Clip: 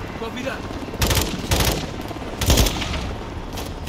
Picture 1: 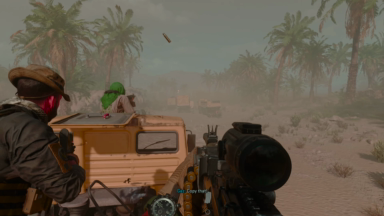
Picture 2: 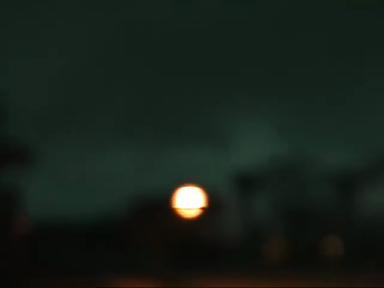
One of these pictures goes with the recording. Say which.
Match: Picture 1